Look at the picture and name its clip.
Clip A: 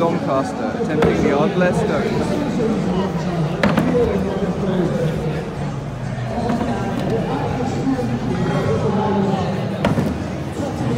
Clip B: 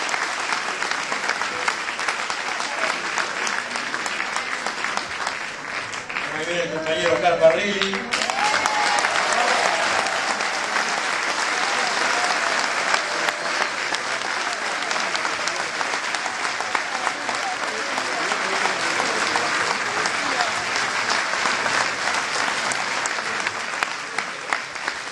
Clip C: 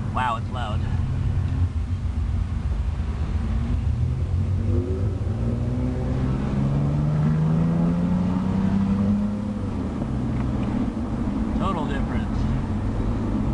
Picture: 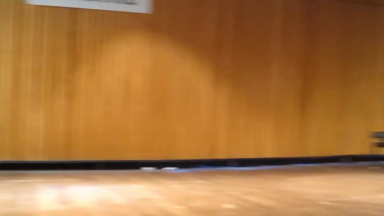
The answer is B